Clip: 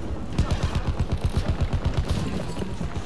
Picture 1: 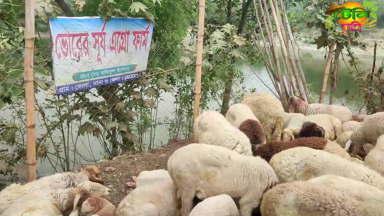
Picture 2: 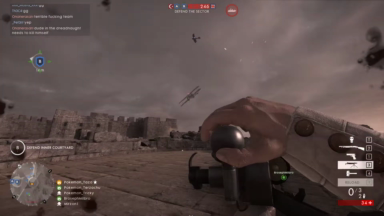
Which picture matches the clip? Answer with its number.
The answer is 2